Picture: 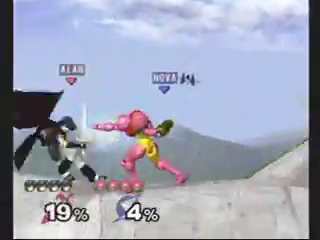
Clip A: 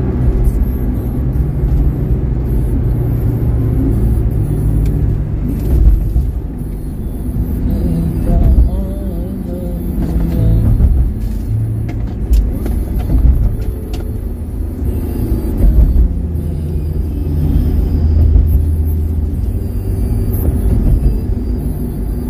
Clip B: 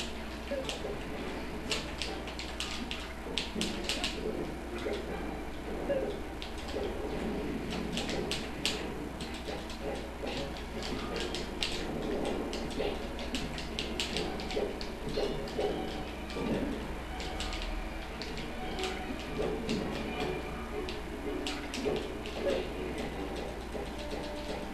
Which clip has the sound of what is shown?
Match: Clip B